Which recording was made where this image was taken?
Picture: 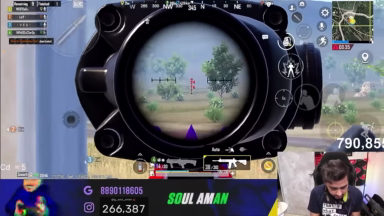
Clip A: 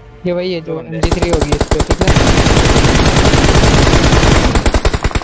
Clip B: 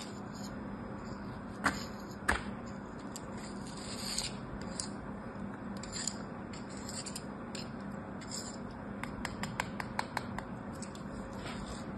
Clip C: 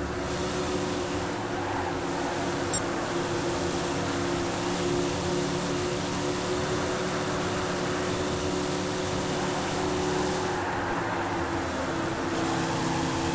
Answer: A